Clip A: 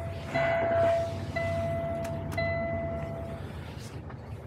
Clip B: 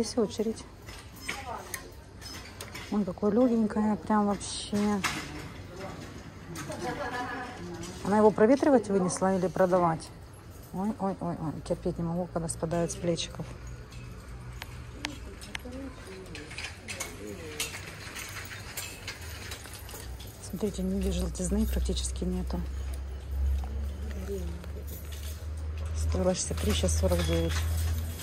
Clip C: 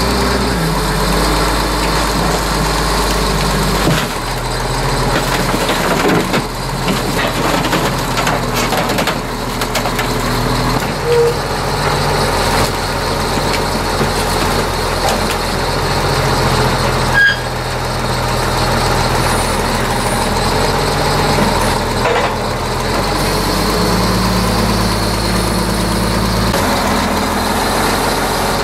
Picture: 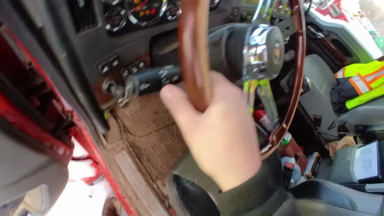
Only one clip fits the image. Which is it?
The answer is A